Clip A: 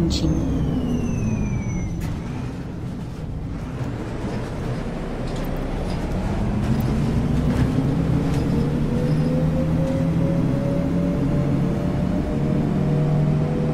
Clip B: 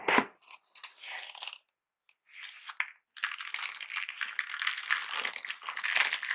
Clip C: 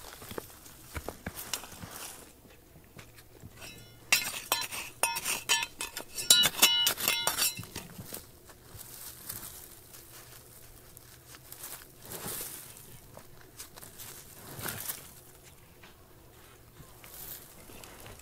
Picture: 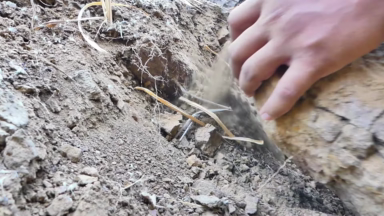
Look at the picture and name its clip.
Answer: C